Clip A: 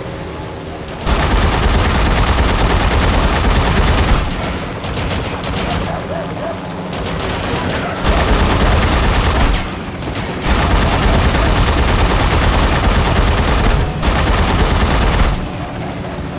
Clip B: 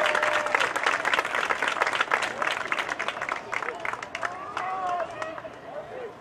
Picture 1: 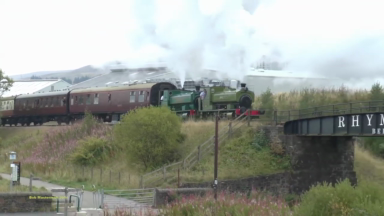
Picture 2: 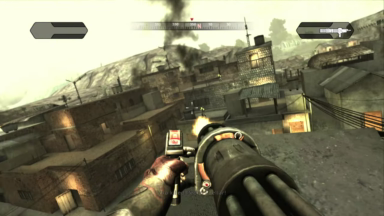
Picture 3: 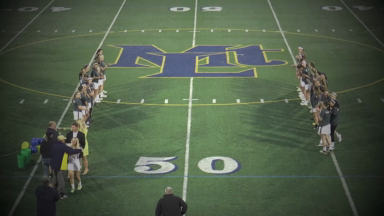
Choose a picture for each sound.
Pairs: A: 2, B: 3